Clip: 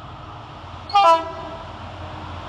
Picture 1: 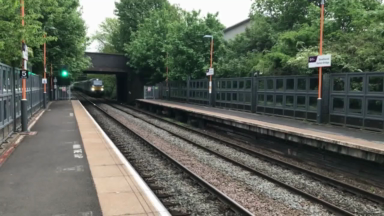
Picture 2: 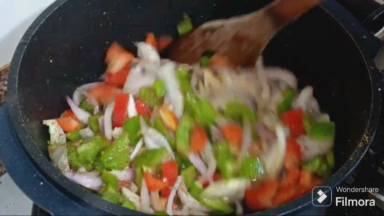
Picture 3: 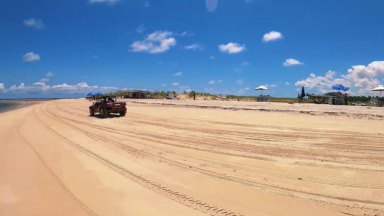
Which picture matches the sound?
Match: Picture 1